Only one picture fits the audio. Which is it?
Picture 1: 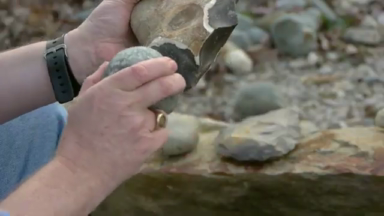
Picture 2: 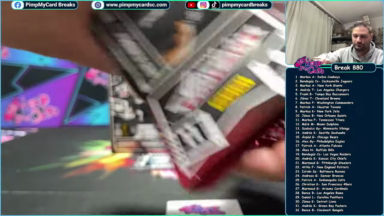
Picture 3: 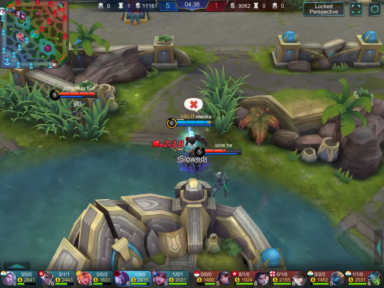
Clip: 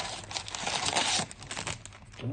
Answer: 2